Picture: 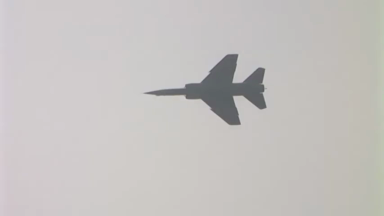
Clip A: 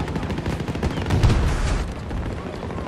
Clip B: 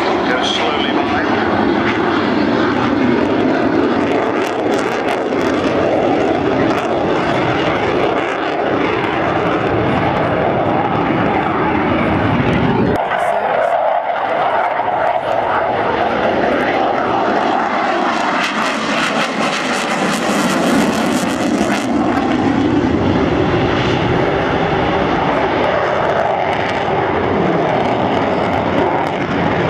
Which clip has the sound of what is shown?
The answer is B